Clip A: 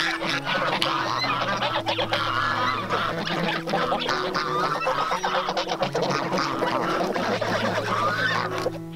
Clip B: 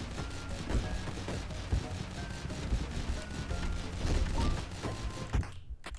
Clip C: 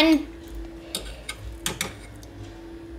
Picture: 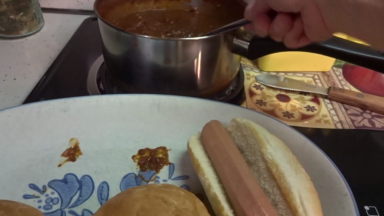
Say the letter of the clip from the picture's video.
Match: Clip C